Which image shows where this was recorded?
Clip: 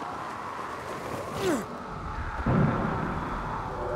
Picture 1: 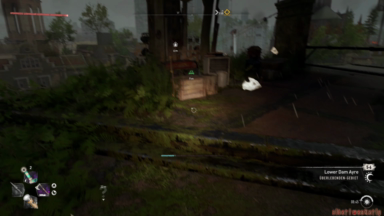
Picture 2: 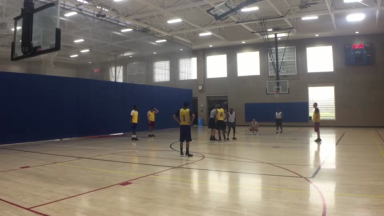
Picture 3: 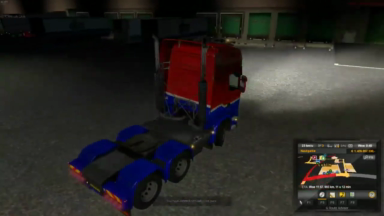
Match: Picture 1